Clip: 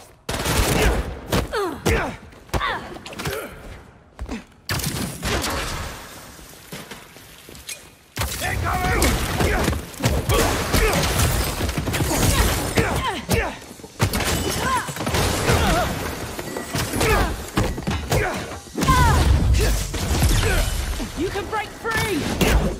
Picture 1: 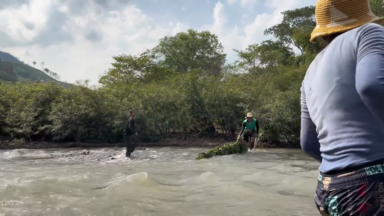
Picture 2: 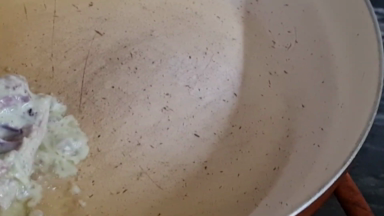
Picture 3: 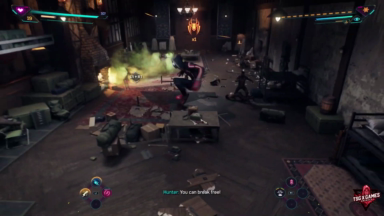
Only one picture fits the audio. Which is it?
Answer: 3